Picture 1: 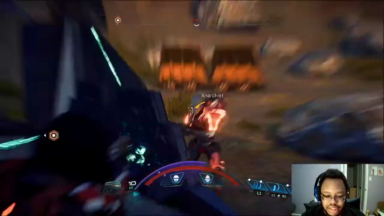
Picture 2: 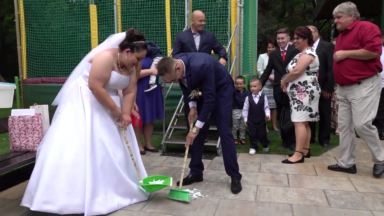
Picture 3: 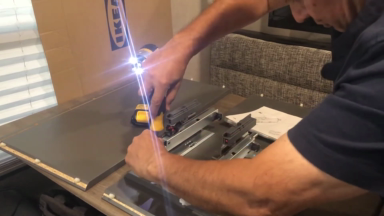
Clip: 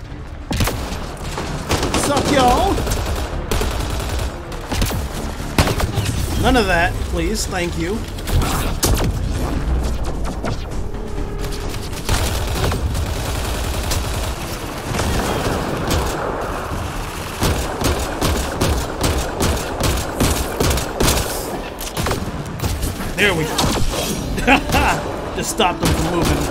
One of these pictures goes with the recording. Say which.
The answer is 1